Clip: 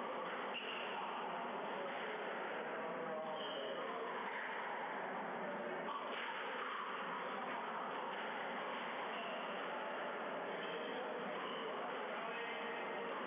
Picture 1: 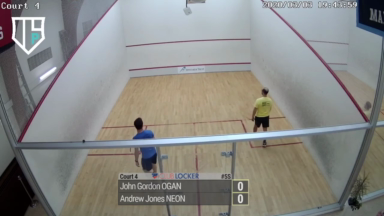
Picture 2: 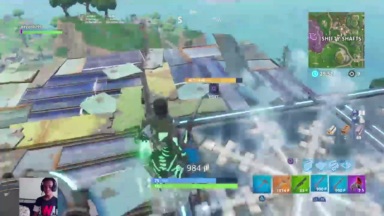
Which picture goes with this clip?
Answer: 1